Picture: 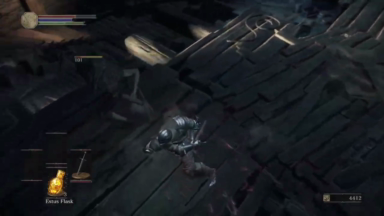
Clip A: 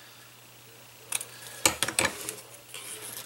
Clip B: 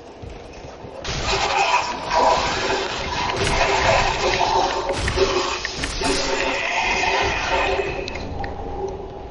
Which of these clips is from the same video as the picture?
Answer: B